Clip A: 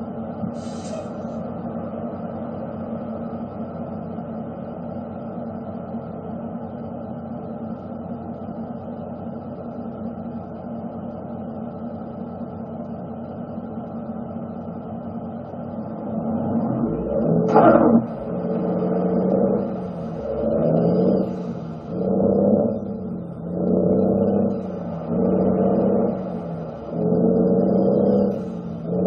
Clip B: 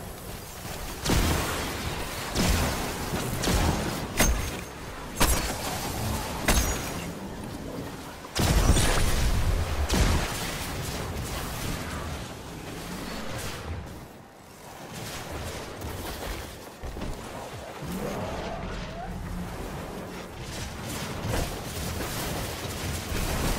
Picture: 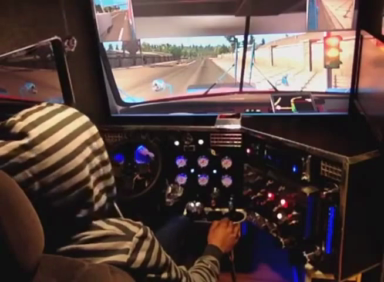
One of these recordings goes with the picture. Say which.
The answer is A